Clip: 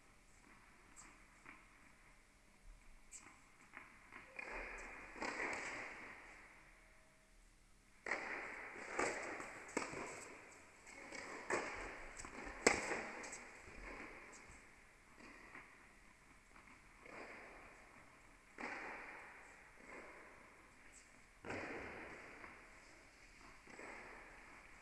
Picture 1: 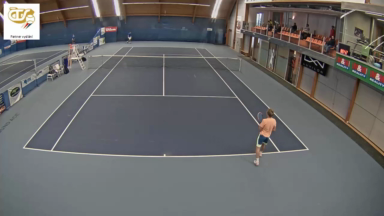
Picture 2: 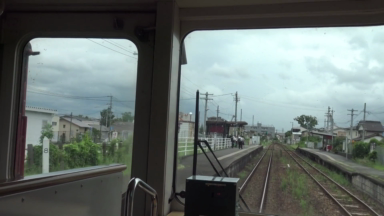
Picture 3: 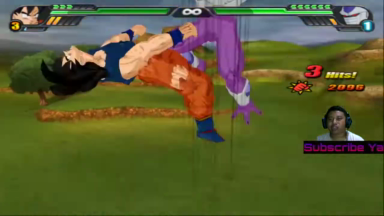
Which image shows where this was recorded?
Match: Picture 1